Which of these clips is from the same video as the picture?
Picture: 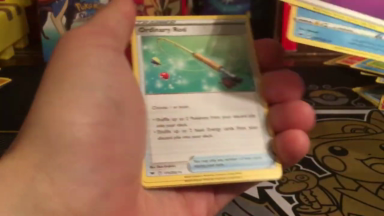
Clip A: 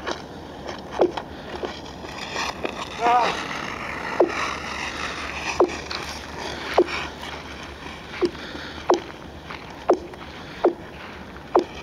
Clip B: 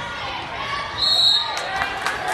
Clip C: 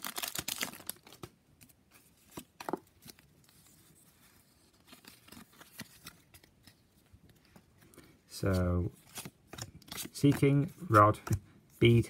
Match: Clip C